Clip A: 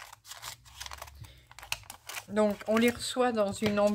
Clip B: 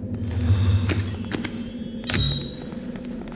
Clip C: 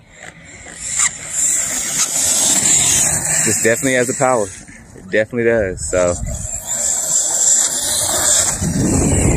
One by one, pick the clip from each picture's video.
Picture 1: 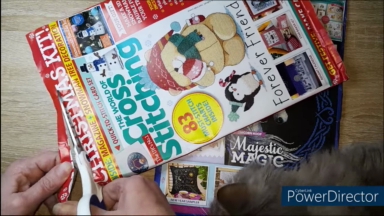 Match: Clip A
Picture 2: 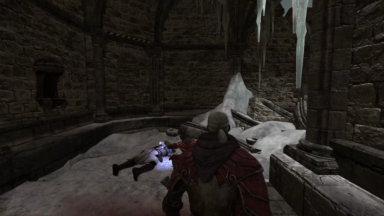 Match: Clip B